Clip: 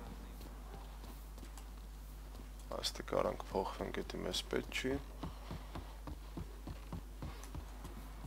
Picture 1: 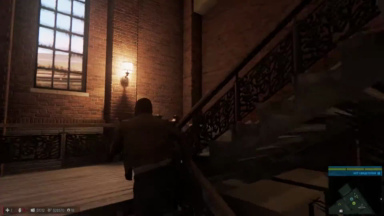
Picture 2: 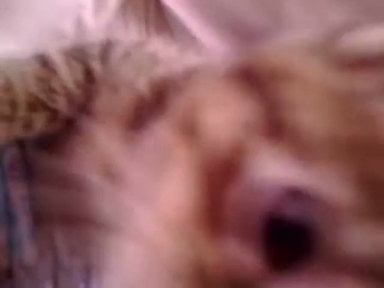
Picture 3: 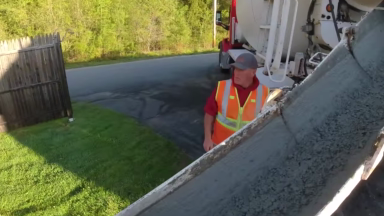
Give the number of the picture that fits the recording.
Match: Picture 1